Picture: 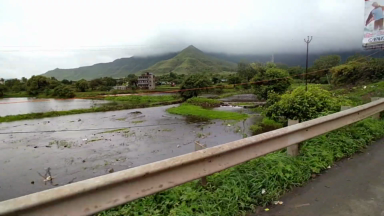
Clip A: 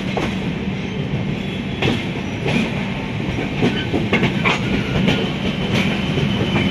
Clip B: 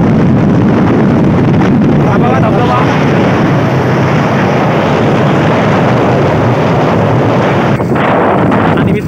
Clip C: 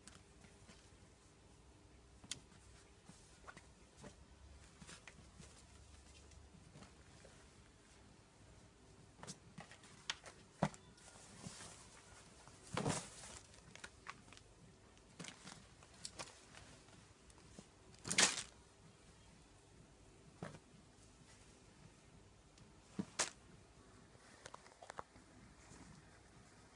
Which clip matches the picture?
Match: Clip B